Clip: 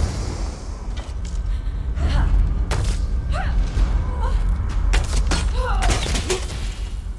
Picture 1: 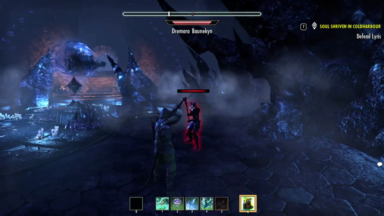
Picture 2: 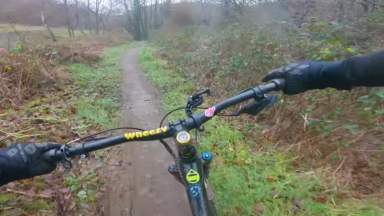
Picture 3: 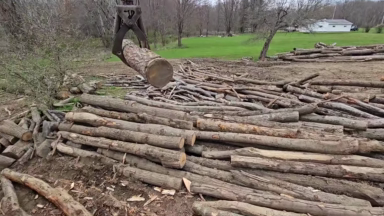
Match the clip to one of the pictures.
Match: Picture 1